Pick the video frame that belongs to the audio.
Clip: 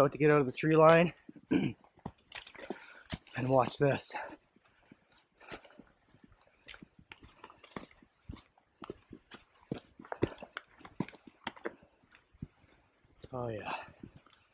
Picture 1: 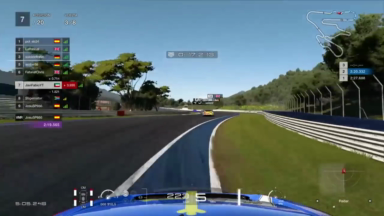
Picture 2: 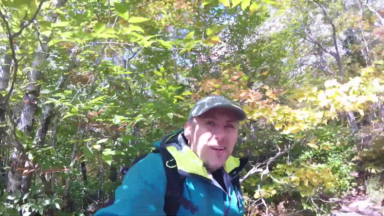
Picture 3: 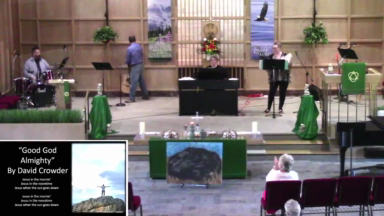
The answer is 2